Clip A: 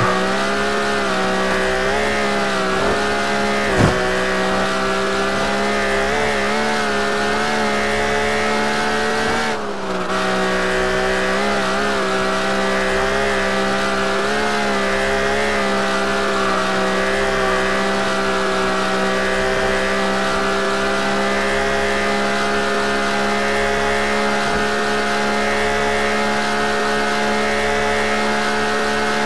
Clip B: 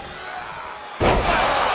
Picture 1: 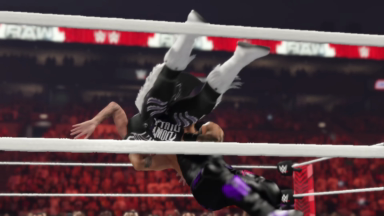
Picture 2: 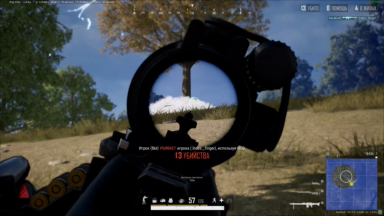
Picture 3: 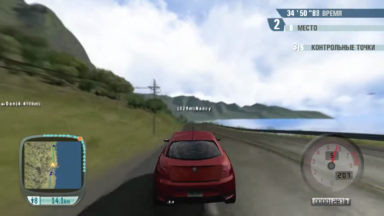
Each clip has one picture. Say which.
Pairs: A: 3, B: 1